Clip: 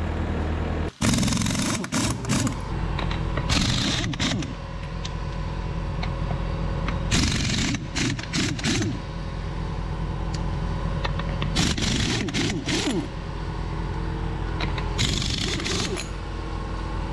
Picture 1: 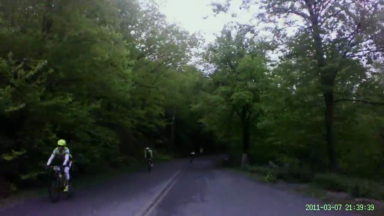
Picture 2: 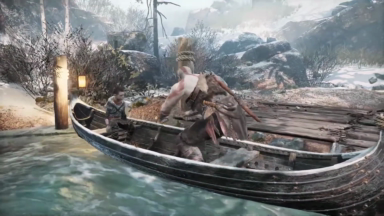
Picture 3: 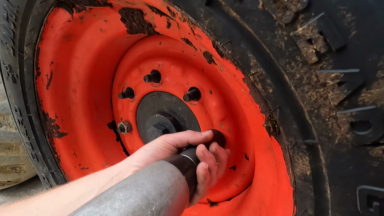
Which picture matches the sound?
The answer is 3